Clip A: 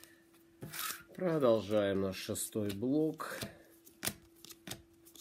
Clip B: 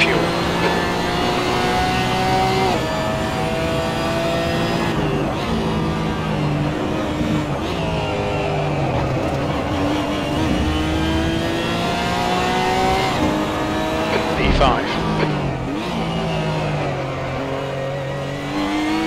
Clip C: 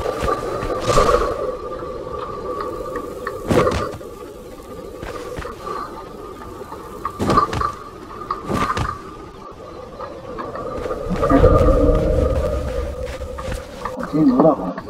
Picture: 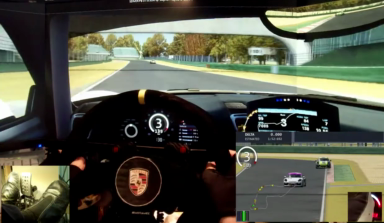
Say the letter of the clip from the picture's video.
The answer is B